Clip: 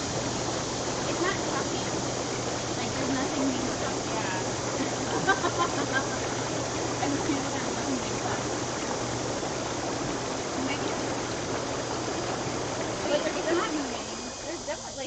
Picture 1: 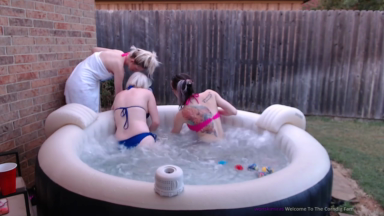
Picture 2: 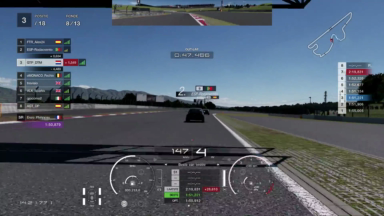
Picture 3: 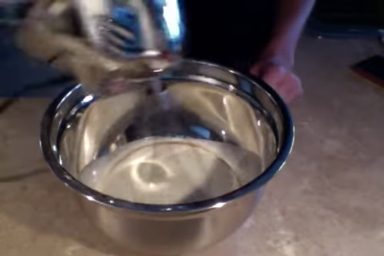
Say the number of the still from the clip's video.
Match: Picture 1